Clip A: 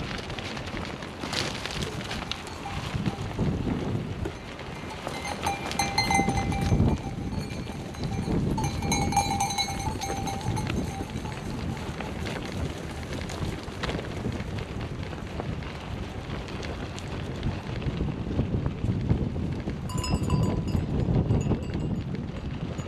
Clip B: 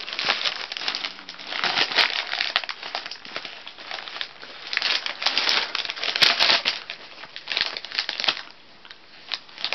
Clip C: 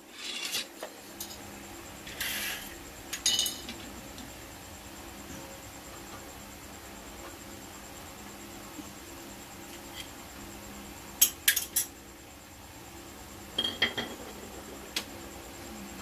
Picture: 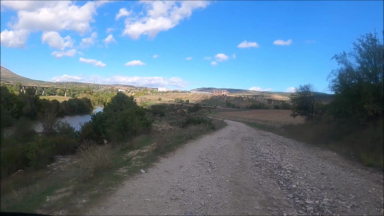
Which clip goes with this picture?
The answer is A